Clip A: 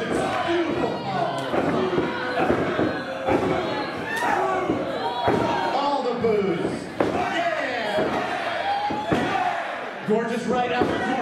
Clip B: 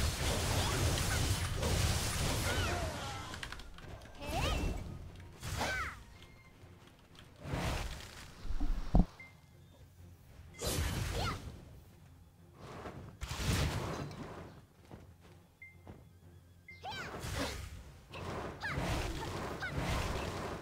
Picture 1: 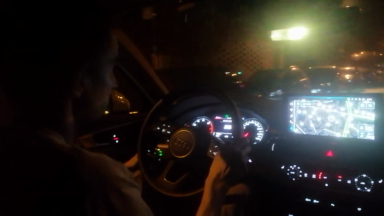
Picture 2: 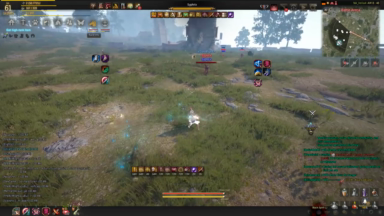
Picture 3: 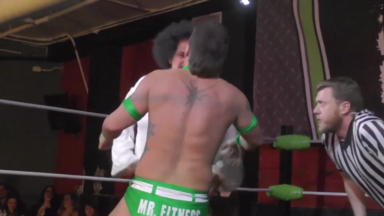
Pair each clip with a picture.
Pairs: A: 3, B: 2